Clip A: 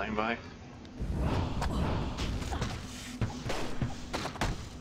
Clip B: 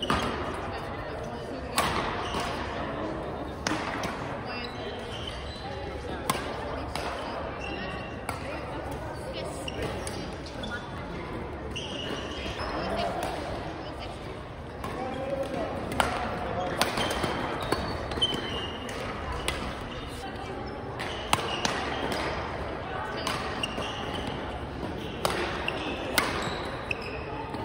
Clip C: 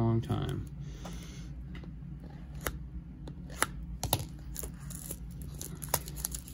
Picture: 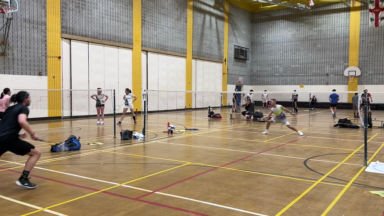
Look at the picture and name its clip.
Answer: B